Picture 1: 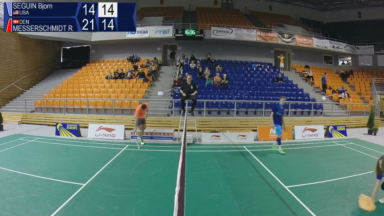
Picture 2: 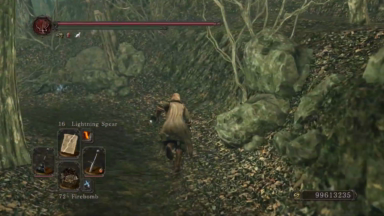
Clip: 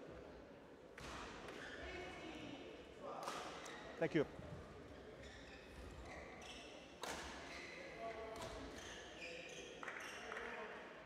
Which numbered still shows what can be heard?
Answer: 1